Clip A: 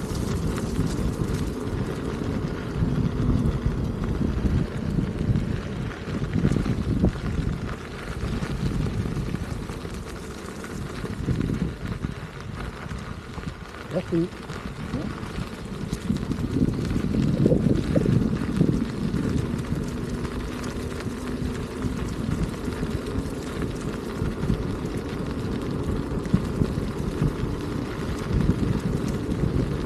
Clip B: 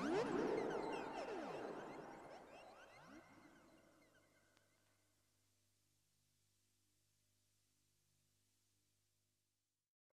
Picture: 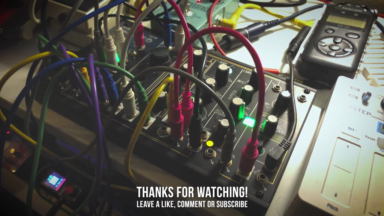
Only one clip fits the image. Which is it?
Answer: B